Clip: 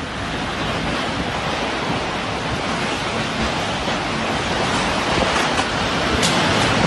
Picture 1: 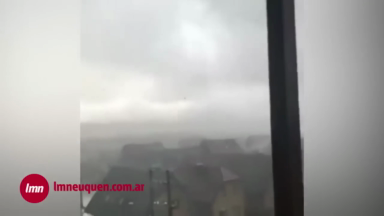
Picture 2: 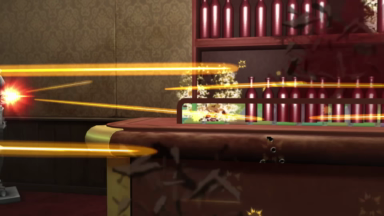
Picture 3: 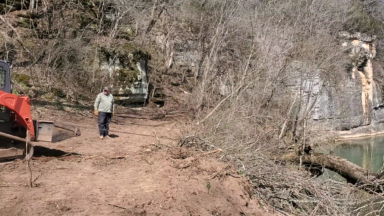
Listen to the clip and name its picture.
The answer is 1